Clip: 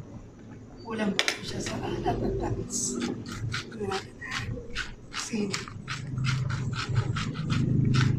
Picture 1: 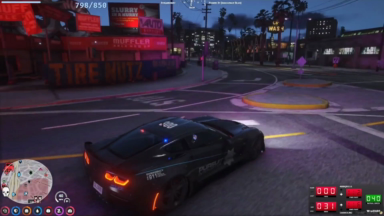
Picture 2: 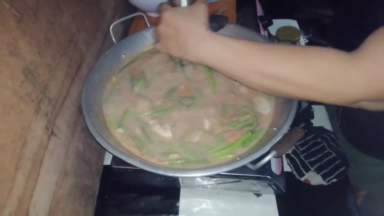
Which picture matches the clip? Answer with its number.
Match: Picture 2